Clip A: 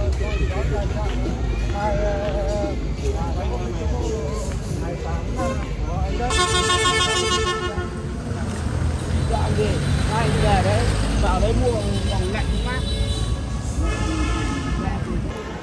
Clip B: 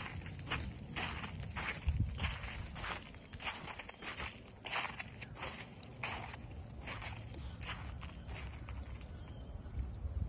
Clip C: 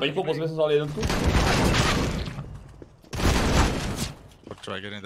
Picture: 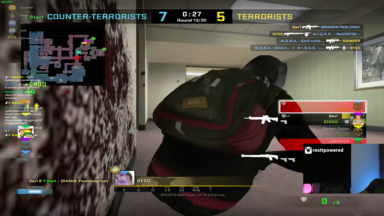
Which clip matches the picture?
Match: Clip C